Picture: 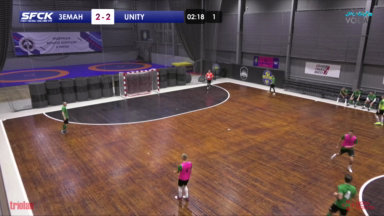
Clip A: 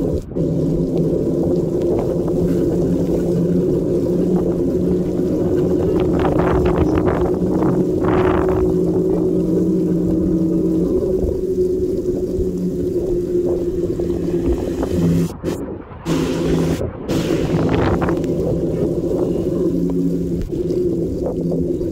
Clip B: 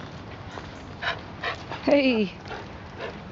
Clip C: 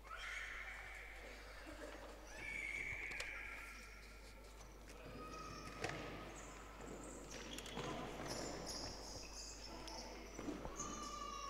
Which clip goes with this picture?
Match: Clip C